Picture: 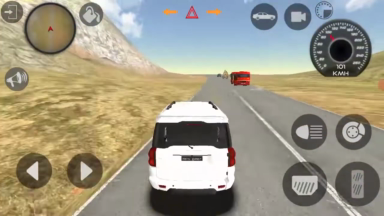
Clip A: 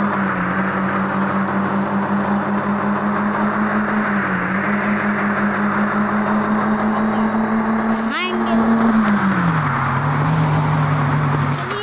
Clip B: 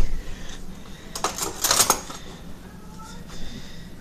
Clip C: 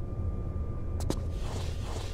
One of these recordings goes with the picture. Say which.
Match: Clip A